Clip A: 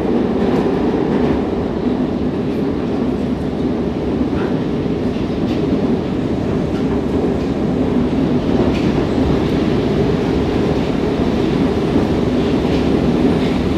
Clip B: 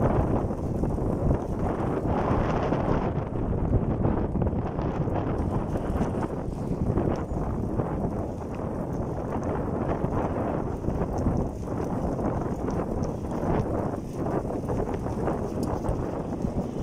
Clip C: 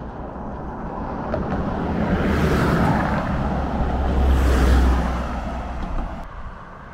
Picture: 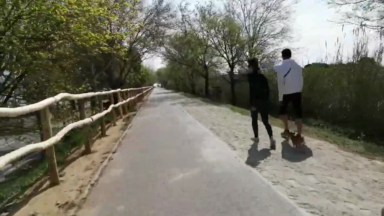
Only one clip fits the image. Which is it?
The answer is B